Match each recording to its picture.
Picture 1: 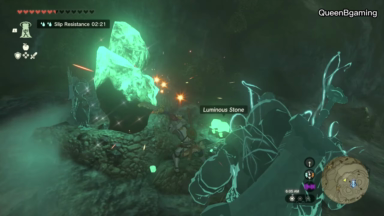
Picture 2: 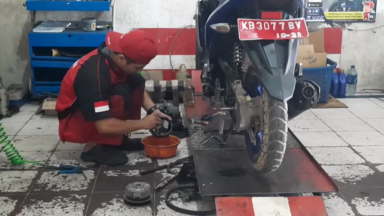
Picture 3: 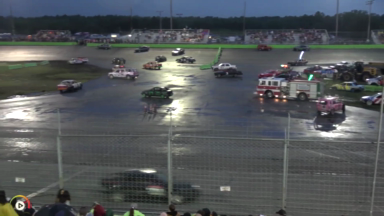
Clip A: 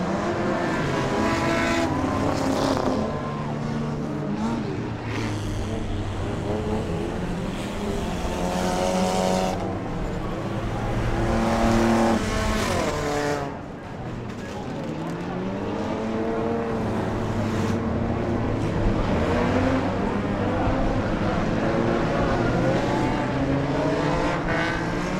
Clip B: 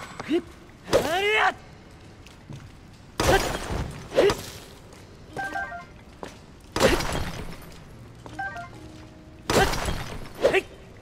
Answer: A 3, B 1